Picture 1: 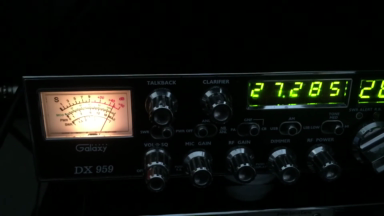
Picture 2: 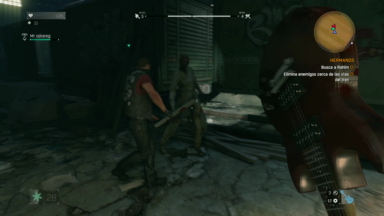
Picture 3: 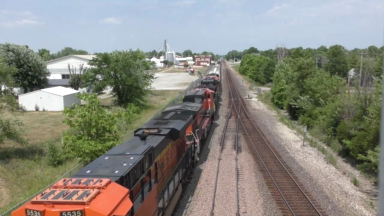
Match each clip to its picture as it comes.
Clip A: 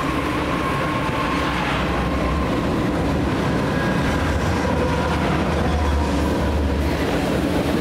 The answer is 3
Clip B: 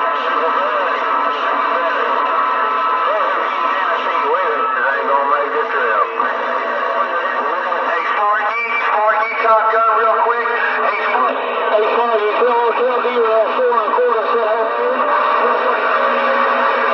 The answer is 1